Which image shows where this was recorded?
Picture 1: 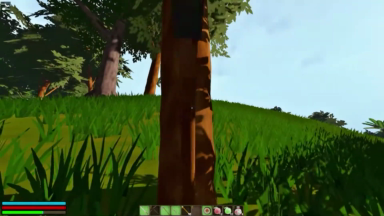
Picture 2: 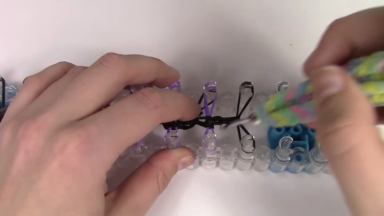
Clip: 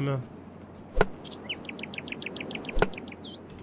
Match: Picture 1